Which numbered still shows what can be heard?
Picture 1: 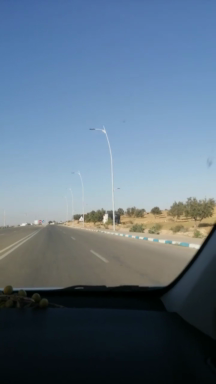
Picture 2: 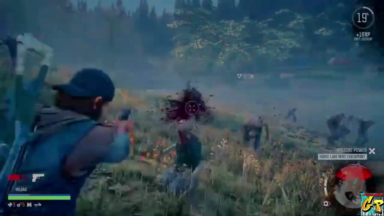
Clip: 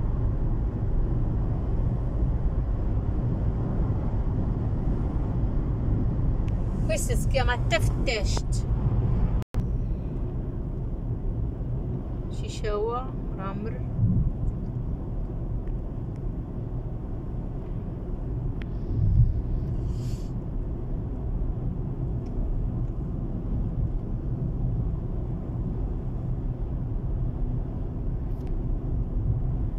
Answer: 1